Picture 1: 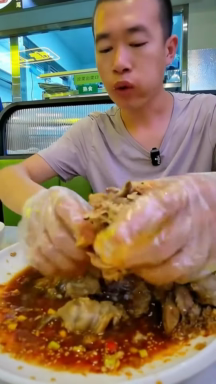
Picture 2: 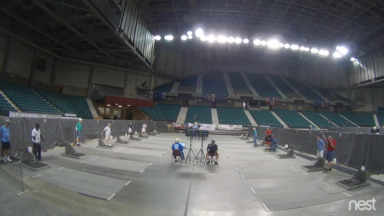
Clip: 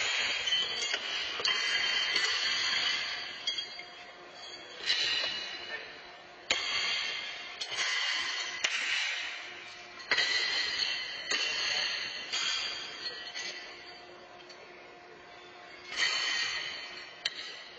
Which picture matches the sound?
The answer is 2